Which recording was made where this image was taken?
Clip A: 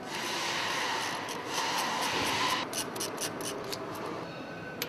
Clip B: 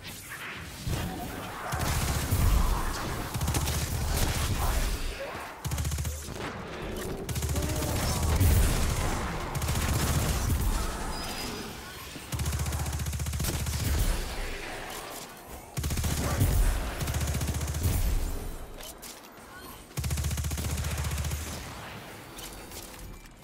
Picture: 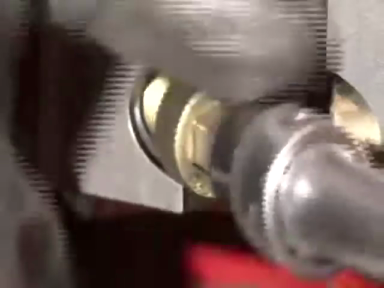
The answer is A